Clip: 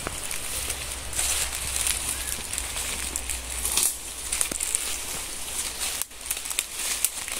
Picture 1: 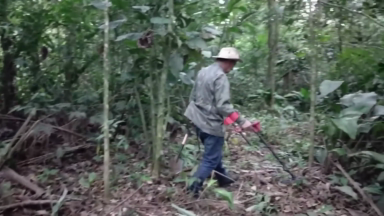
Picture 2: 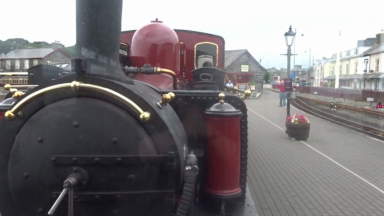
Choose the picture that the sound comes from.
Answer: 1